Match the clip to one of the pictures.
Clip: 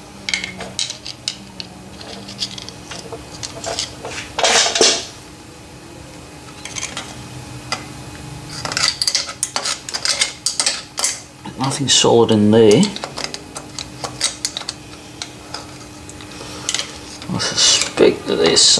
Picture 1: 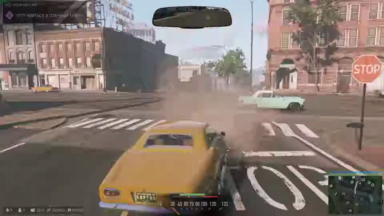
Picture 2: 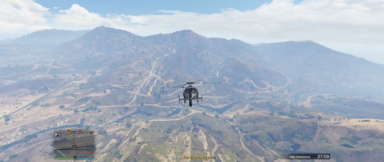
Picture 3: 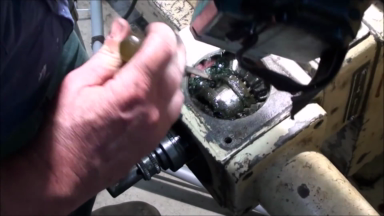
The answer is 3